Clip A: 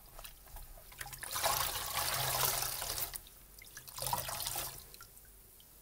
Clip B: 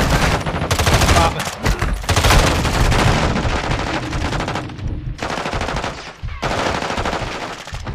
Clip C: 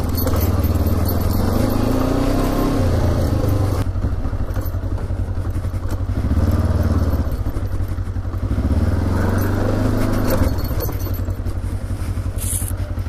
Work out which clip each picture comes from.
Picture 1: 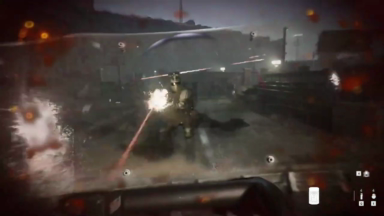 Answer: B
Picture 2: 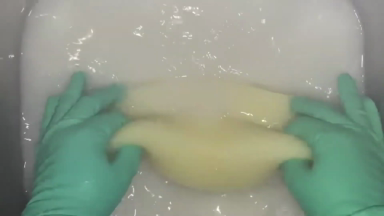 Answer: A